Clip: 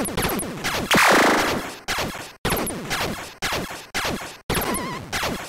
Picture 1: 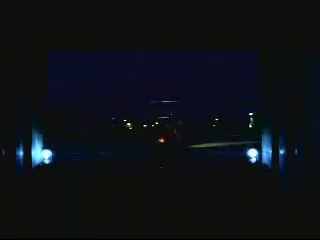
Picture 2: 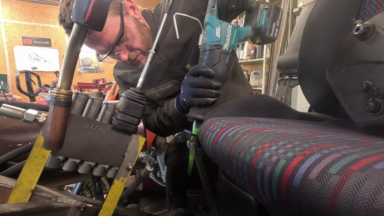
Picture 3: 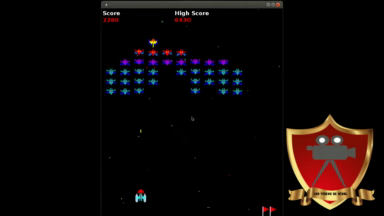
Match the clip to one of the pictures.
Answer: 3